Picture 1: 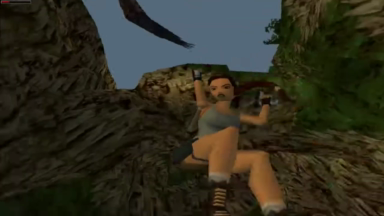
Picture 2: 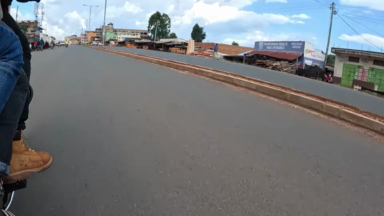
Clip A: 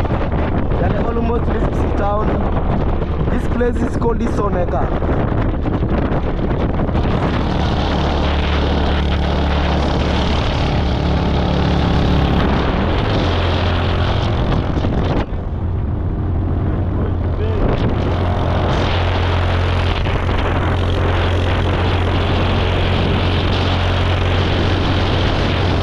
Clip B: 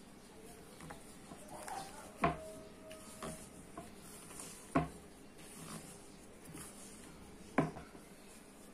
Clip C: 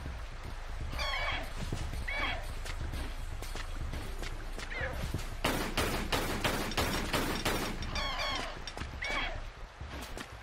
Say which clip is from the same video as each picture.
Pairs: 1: C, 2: A